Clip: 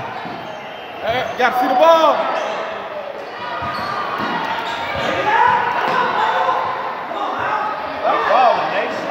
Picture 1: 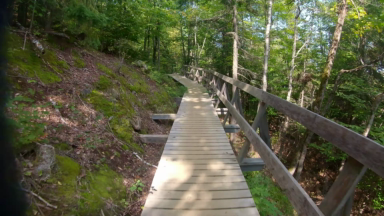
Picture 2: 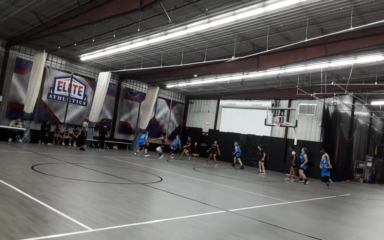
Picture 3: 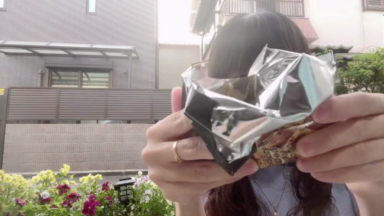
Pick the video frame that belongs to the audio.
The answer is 2